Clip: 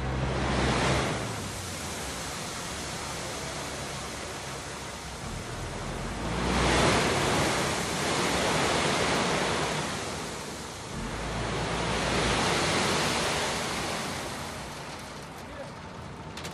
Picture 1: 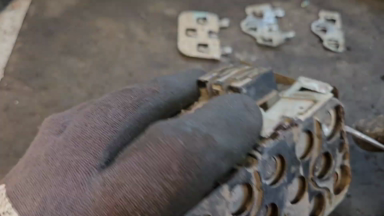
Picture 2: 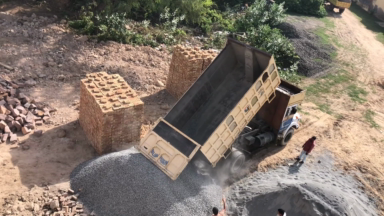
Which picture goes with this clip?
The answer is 2